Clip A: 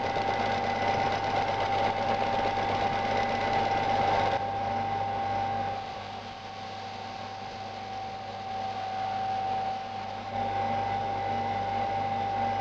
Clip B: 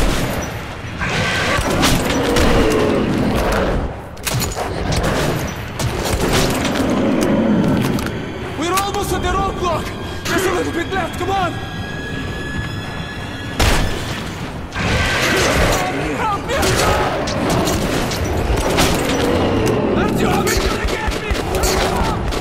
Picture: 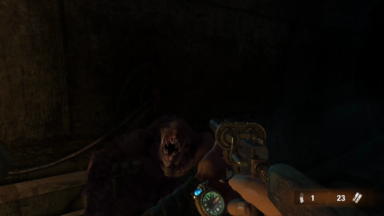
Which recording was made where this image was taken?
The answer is B